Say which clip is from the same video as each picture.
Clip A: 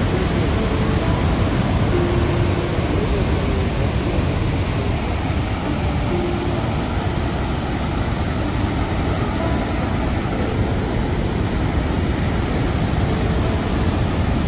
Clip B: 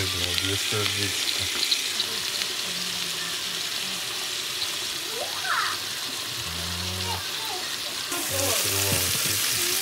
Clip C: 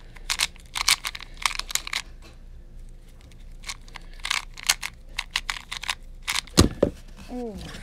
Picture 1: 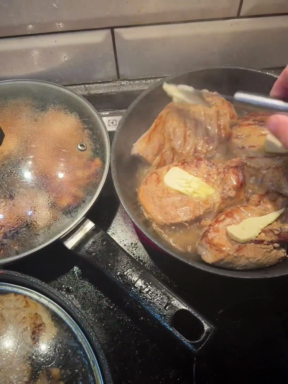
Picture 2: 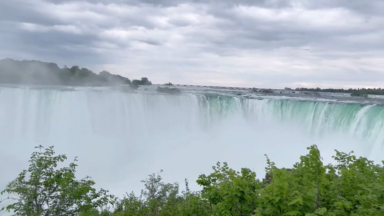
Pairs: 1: B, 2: A